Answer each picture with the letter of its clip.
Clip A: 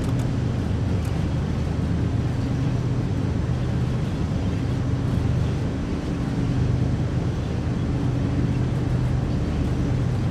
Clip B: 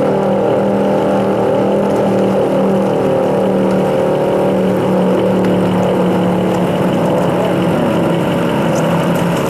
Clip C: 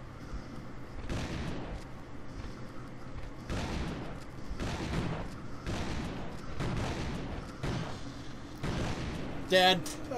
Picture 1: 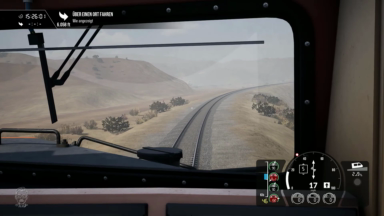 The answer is A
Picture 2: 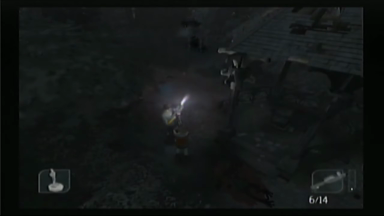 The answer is C